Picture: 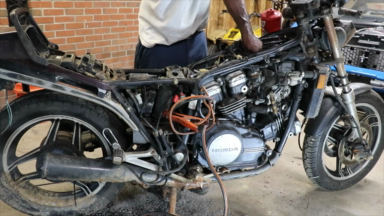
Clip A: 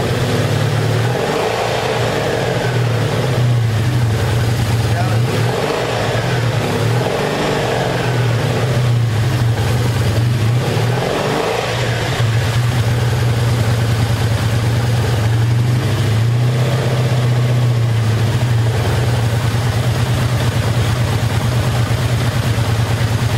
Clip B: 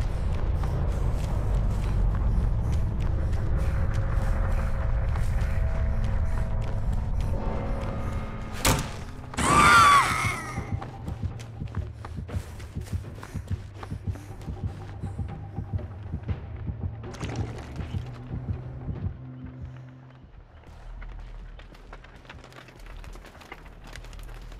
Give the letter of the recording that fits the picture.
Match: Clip A